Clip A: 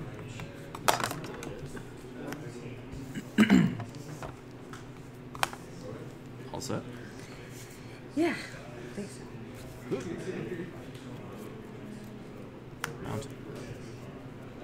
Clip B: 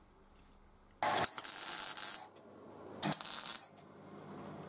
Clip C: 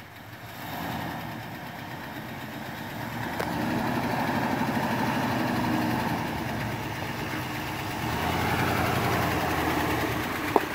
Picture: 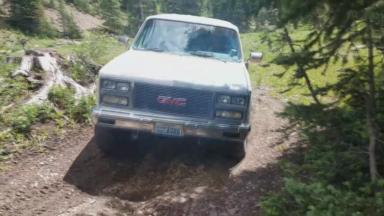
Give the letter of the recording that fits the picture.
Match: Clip C